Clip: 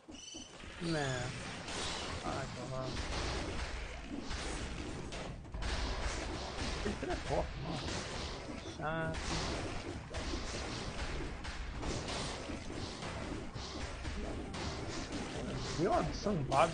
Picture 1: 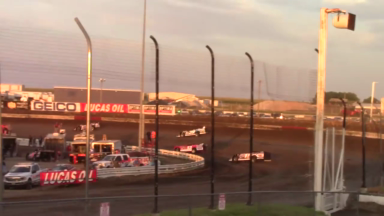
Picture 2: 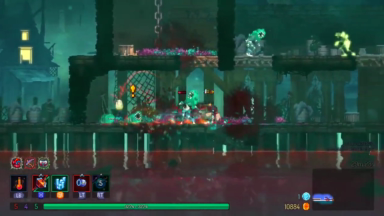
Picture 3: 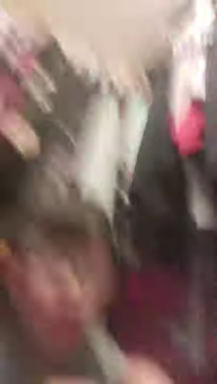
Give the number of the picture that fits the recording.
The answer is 2